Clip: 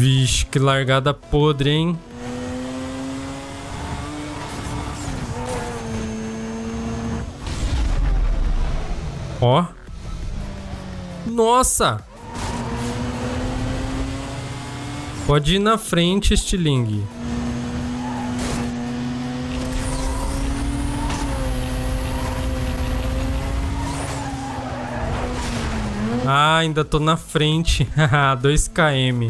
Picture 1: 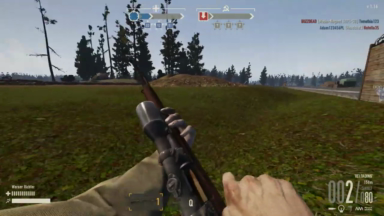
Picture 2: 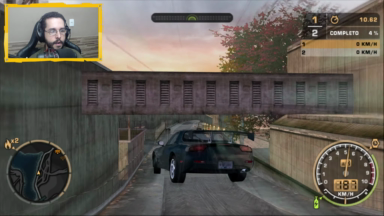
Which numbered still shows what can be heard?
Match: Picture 2